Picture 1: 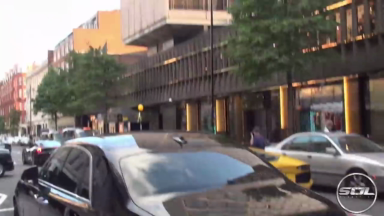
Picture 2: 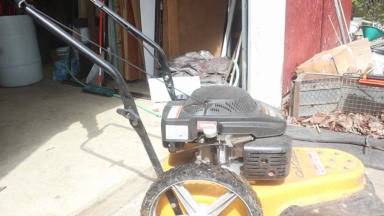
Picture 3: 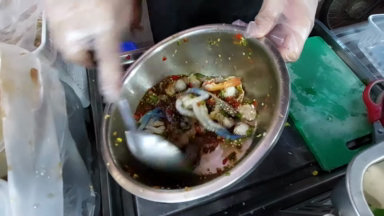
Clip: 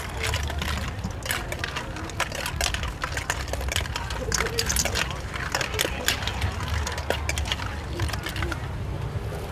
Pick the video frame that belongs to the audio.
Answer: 3